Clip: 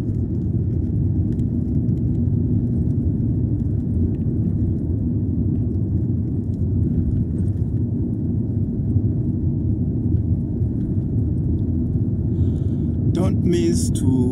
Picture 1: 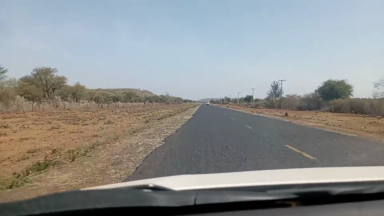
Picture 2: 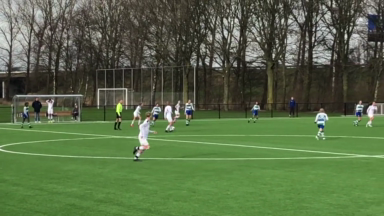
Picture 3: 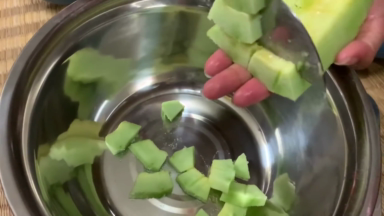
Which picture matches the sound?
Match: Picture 1